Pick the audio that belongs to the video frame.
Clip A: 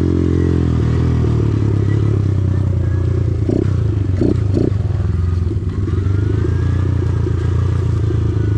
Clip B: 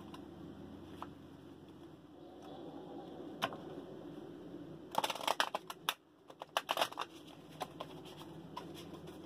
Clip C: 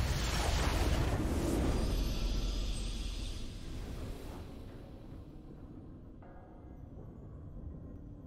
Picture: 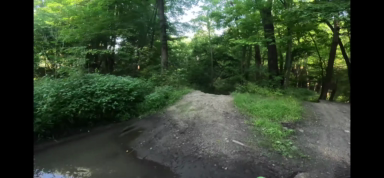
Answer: A